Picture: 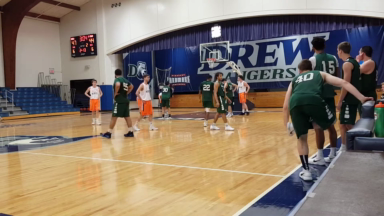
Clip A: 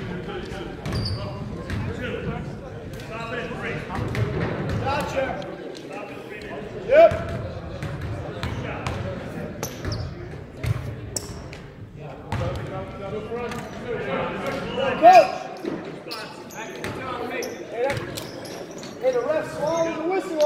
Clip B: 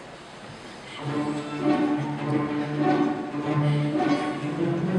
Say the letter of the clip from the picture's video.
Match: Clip A